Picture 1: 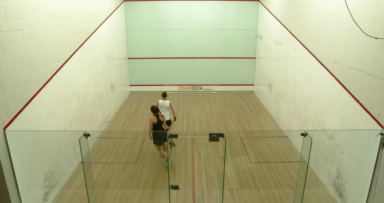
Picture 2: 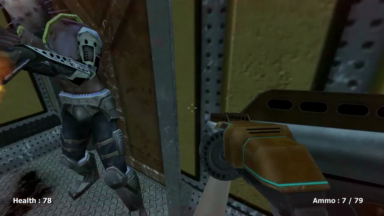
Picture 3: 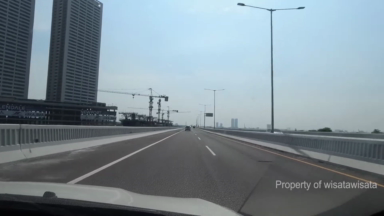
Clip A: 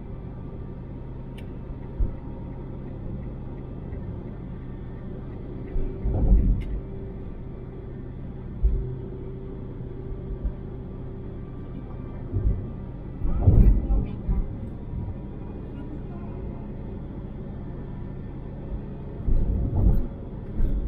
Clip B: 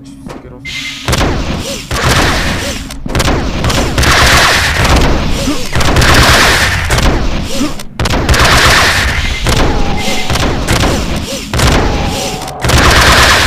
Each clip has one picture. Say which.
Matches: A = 3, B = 2